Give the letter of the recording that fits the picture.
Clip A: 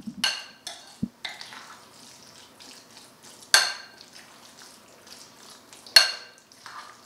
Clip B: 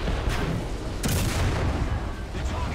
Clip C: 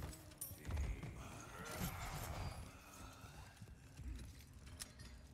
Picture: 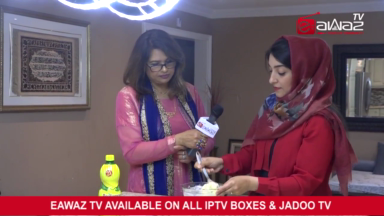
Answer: A